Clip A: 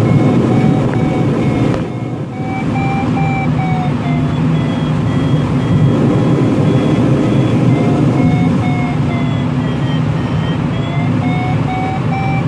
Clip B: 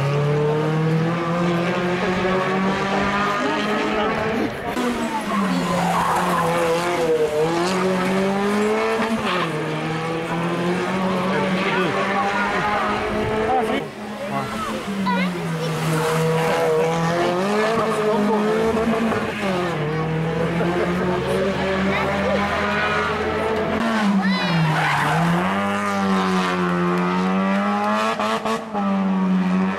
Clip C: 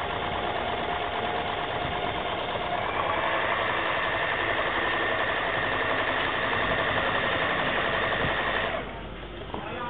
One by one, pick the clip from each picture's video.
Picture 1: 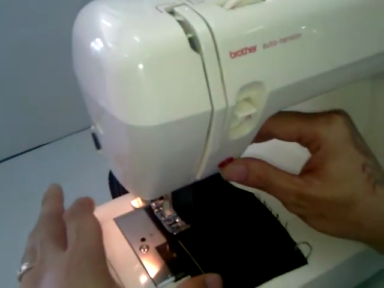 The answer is C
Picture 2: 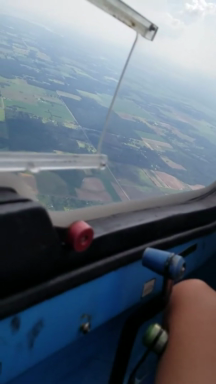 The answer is A